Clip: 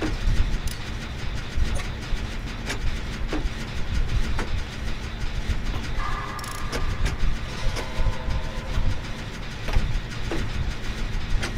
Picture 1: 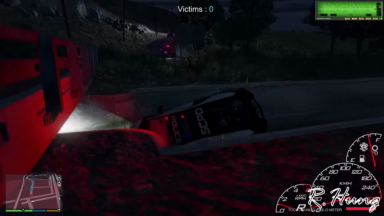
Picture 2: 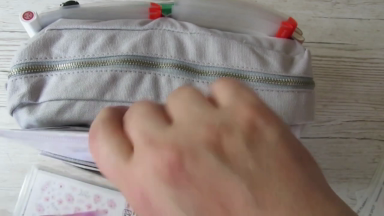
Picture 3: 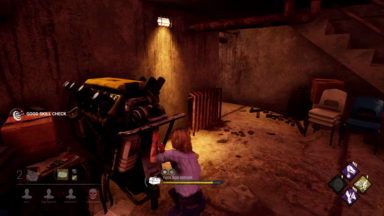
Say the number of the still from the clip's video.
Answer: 3